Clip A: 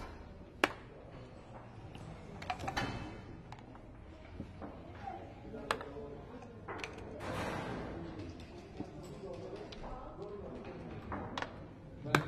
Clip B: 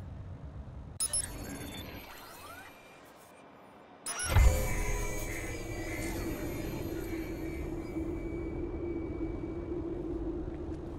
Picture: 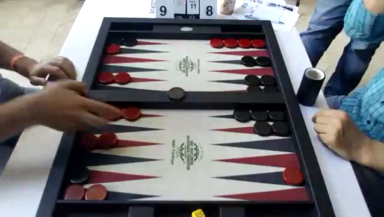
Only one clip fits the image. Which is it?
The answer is A